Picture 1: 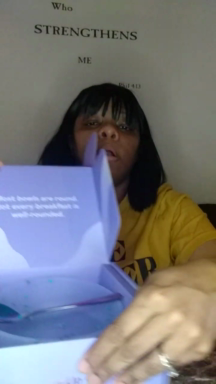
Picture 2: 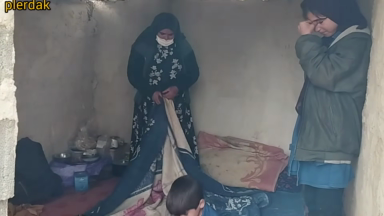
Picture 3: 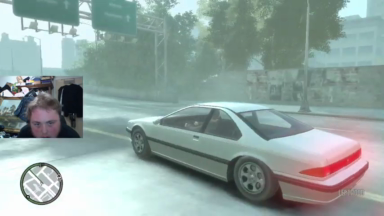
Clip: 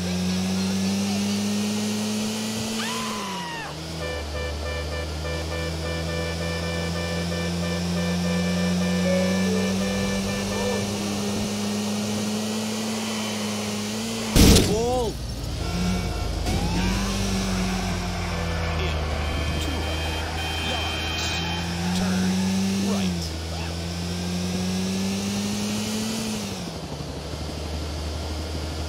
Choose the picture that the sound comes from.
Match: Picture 3